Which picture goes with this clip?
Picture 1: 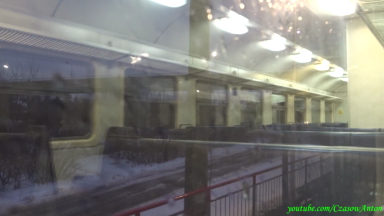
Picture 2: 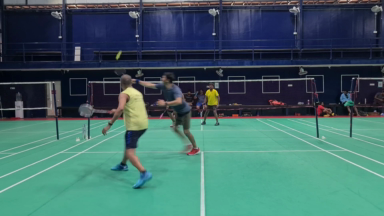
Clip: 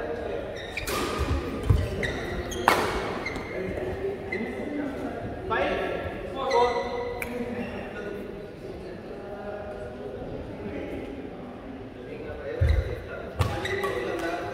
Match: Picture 2